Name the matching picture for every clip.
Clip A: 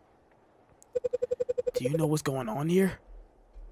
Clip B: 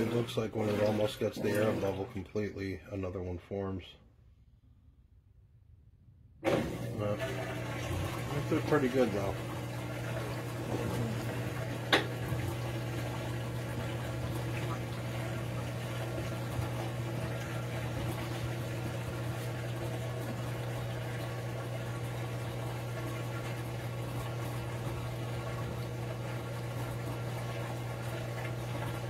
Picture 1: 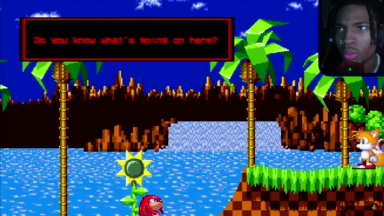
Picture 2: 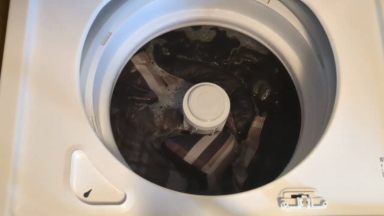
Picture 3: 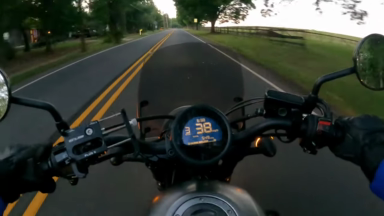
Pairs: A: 1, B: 2